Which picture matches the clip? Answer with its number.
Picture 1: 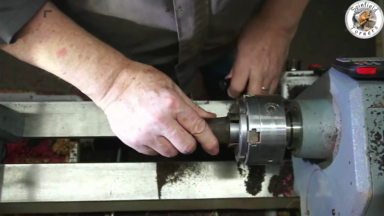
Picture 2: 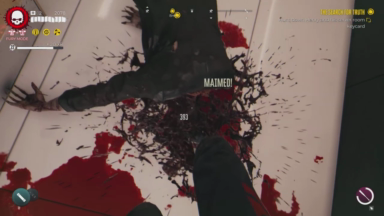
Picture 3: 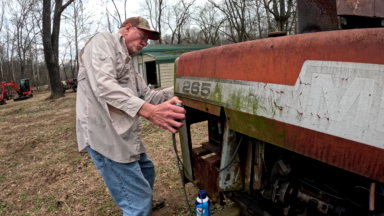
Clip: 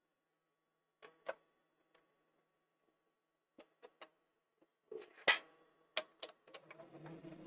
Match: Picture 1